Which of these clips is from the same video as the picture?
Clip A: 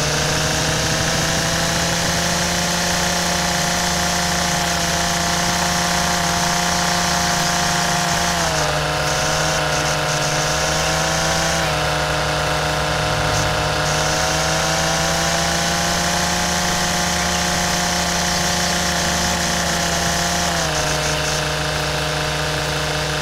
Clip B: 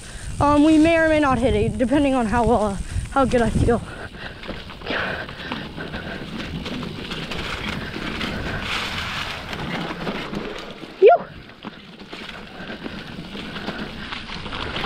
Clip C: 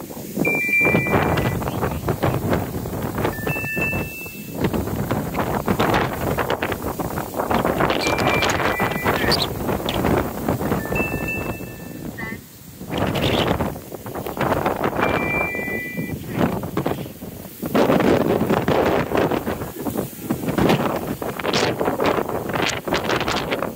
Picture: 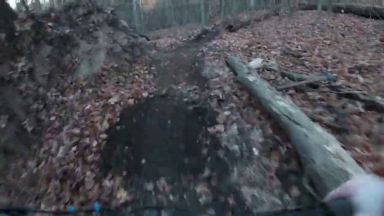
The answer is B